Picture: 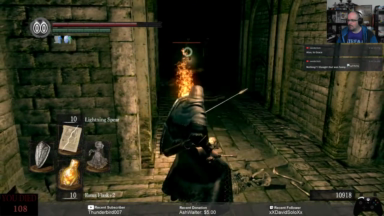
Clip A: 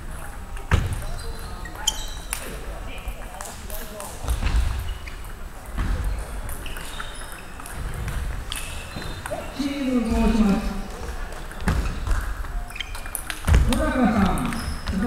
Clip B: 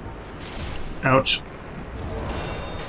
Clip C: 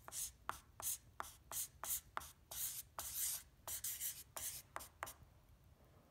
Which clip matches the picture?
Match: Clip B